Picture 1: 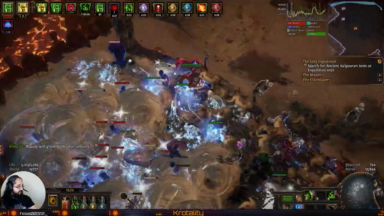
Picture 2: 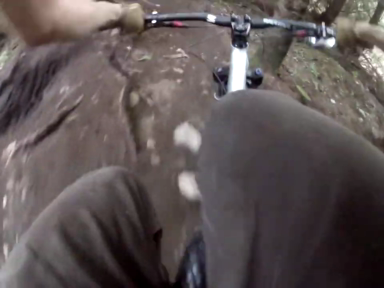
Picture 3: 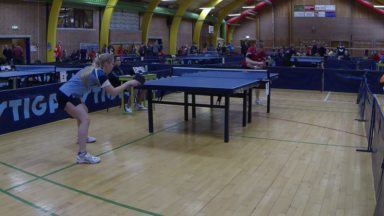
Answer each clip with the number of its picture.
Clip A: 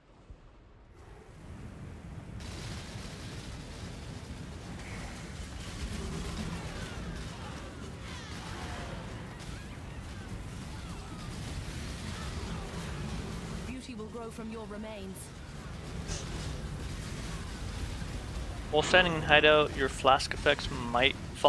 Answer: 1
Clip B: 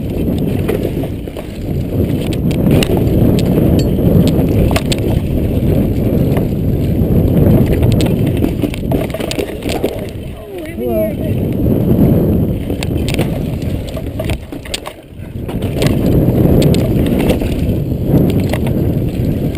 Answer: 2